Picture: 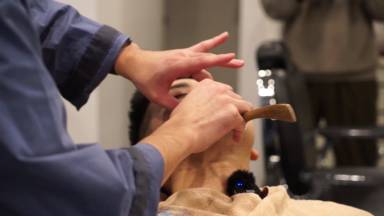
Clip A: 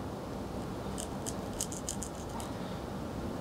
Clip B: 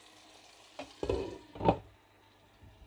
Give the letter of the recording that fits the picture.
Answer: A